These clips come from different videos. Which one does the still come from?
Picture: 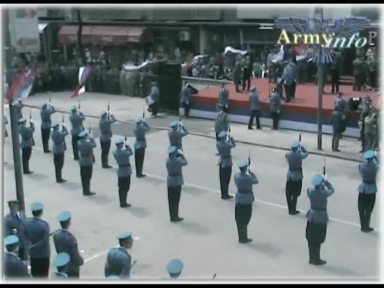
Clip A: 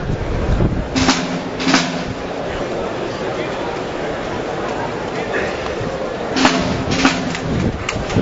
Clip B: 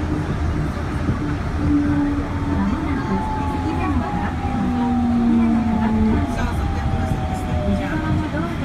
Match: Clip A